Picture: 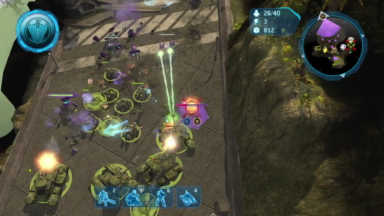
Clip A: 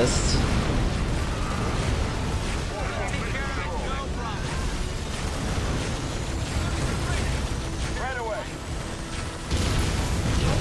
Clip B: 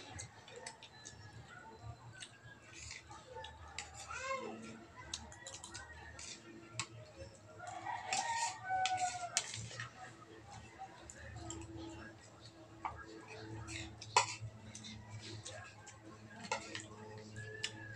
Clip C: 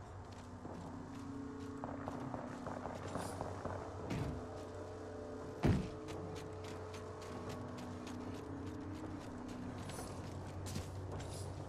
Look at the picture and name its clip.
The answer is A